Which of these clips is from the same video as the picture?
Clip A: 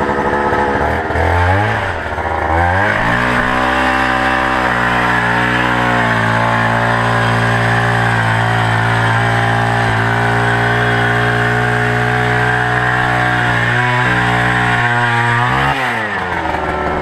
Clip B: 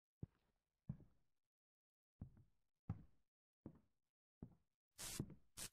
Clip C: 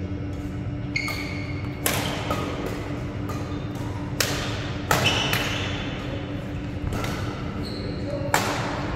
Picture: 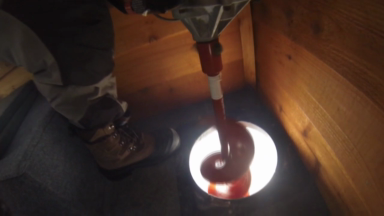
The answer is A